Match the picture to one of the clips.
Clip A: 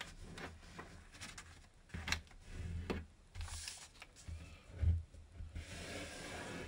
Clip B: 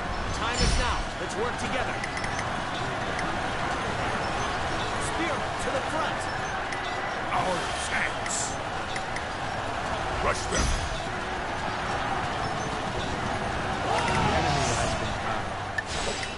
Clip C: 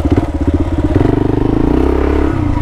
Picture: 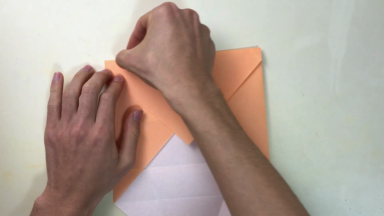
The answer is A